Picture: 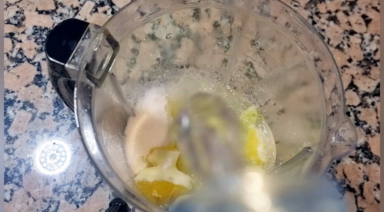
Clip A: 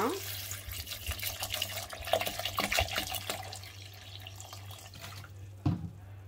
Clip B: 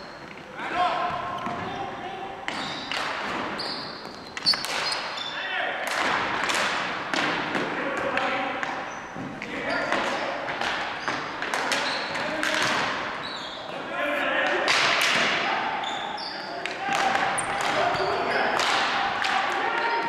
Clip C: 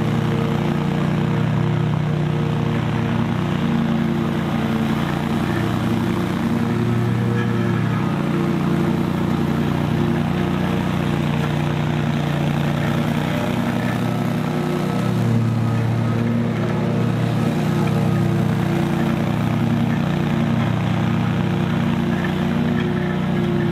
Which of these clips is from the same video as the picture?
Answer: A